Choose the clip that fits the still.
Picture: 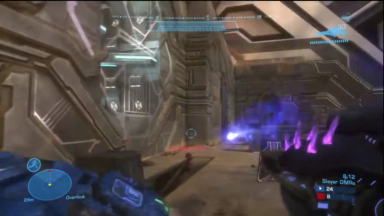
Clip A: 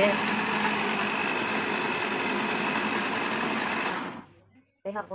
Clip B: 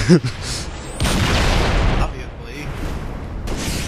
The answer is B